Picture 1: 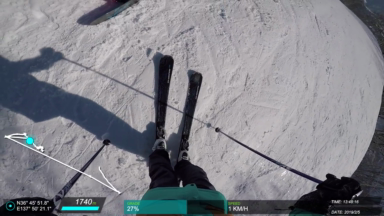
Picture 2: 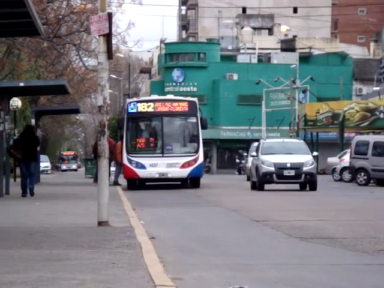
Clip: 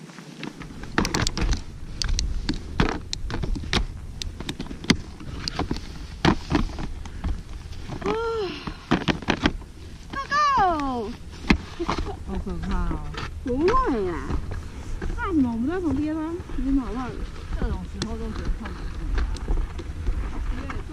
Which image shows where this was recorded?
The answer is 1